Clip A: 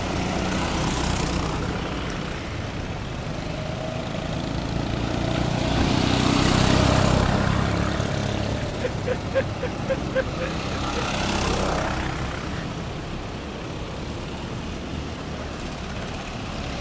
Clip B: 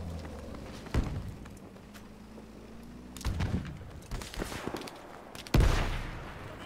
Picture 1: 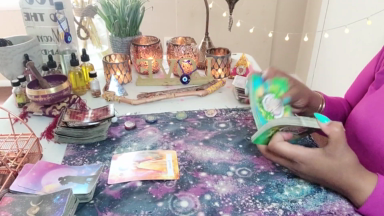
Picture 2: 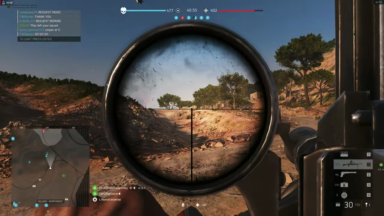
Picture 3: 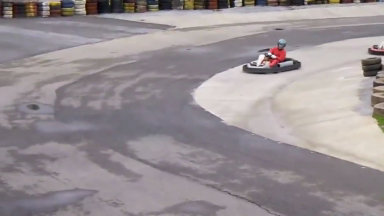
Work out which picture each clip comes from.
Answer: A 3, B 2